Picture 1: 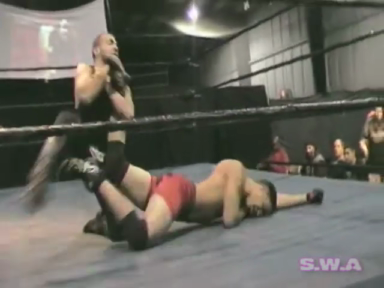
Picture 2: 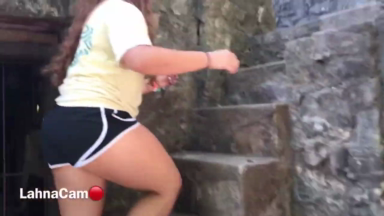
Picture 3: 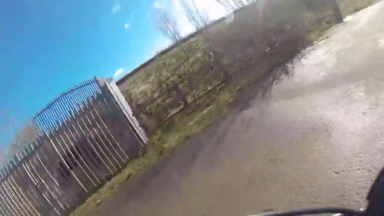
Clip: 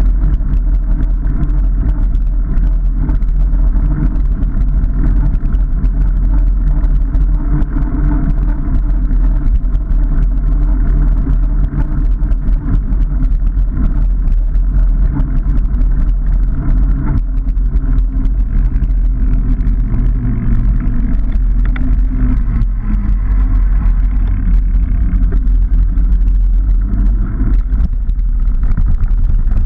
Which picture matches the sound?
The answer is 3